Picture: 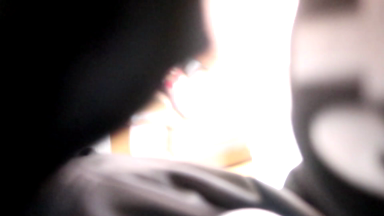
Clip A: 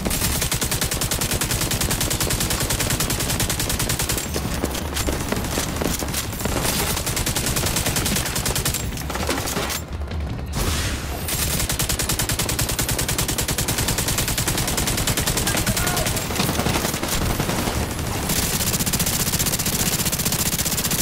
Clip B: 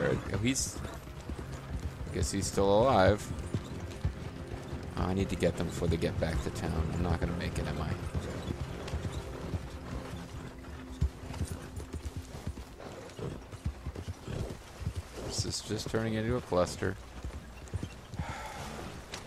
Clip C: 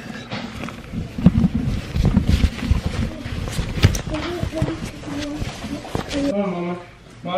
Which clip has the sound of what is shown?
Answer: C